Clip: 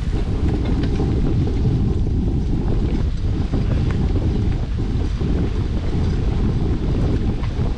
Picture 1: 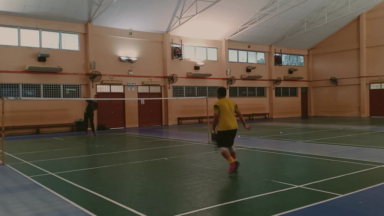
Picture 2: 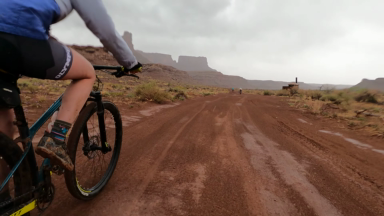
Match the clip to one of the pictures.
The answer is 2